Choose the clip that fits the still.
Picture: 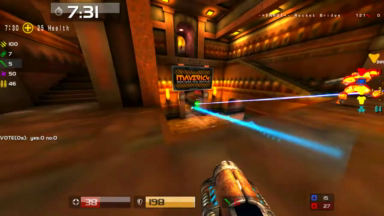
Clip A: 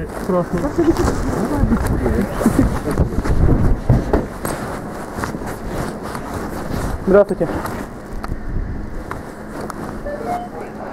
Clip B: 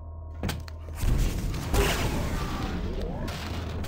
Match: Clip B